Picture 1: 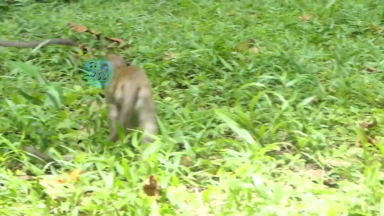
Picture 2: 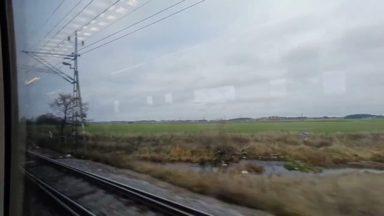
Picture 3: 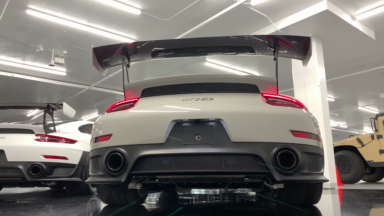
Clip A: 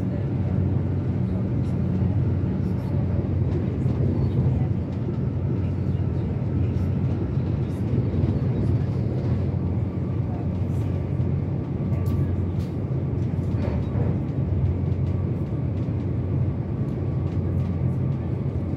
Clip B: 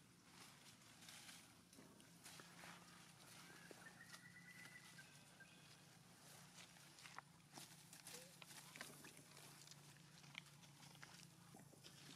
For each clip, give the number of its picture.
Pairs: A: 2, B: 1